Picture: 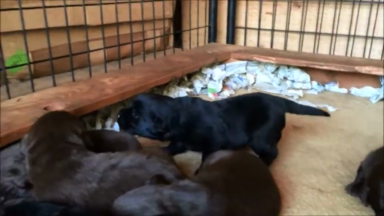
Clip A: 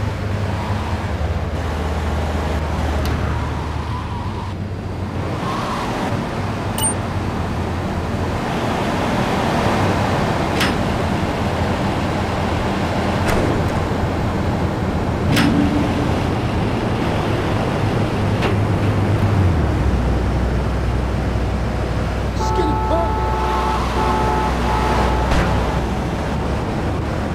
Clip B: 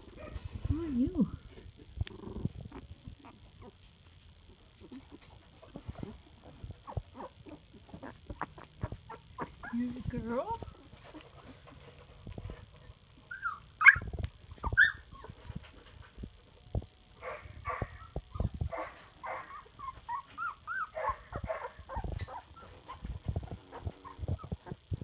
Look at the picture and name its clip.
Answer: B